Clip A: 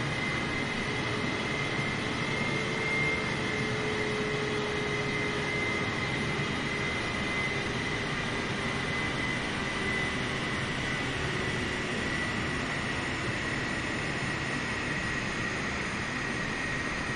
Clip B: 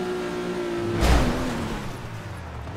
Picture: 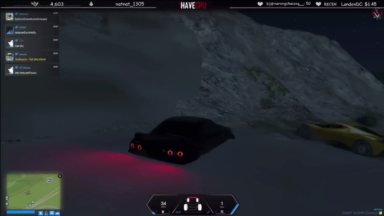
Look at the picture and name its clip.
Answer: B